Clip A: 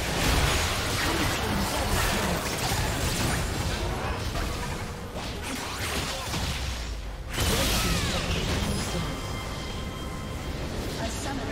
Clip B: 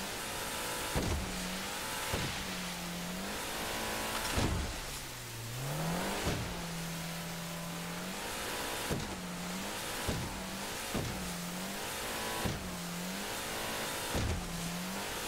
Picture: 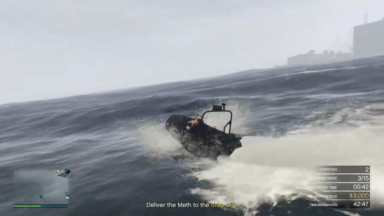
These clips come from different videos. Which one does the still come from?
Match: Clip B